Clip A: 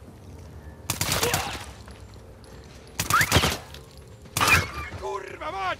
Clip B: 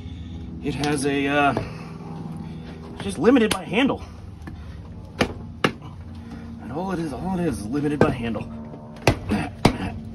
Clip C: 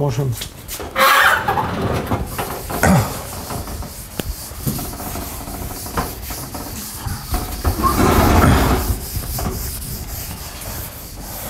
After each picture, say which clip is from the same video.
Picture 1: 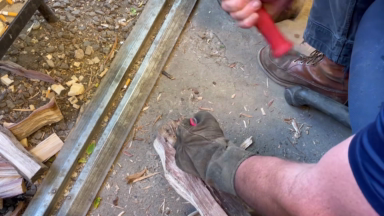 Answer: B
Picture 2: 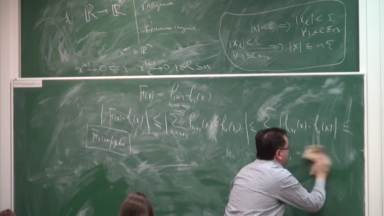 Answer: C